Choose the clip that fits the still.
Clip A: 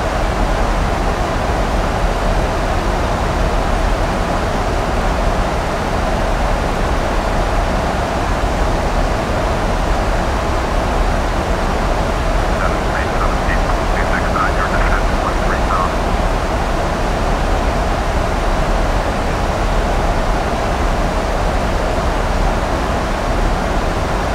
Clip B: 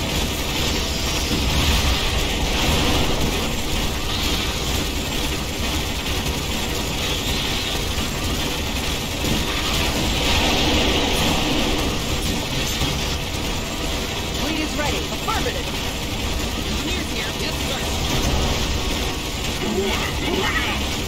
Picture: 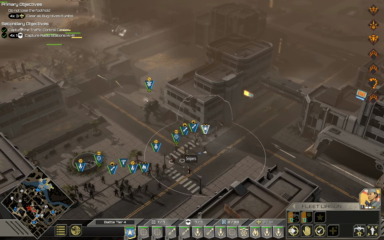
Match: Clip B